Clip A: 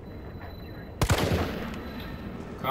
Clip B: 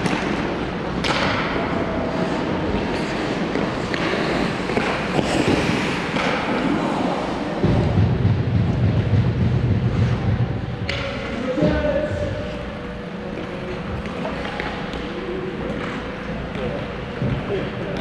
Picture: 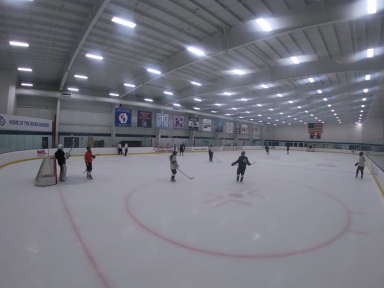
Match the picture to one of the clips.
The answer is B